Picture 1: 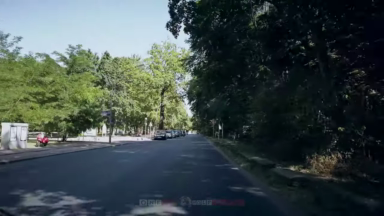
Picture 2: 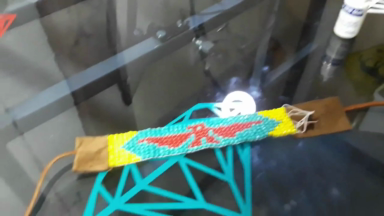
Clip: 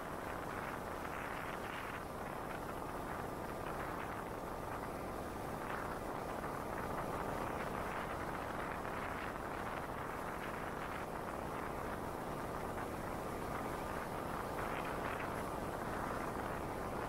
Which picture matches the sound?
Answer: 1